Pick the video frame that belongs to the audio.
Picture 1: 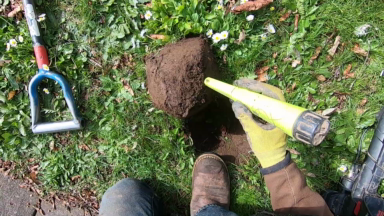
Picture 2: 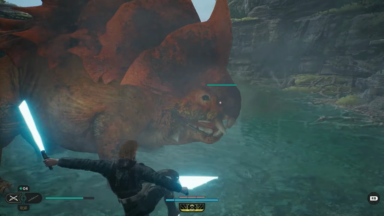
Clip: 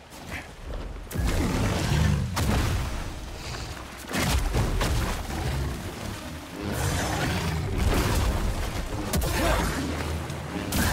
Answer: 2